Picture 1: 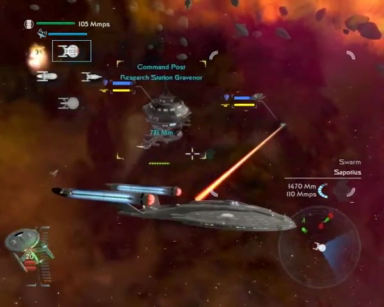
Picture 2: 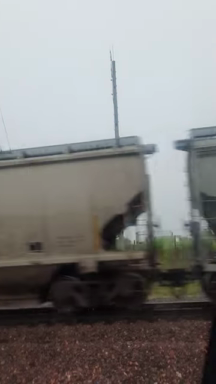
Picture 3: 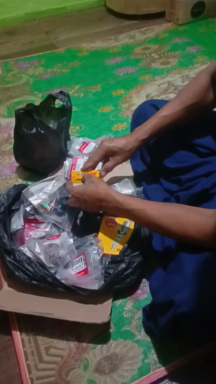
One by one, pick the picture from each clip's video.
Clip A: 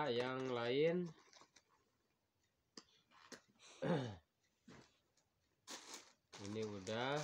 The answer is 3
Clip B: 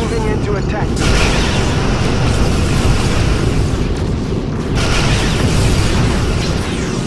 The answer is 1